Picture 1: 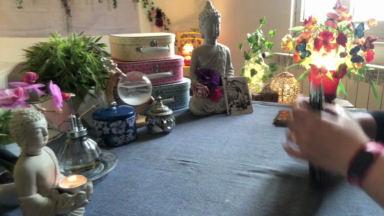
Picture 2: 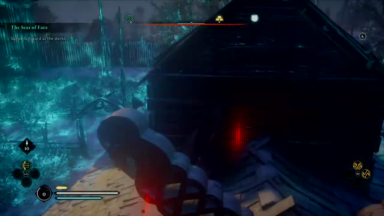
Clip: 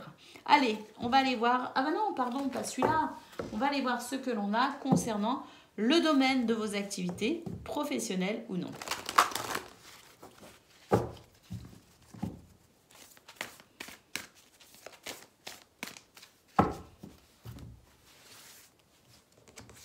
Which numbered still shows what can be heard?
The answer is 1